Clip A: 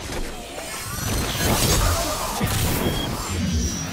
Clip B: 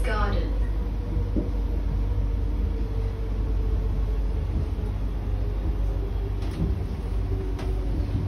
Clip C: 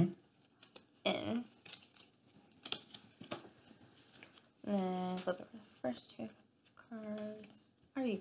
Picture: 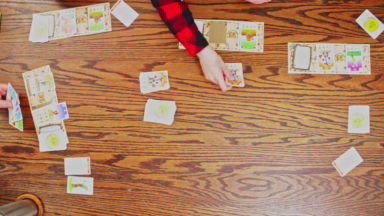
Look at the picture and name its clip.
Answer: C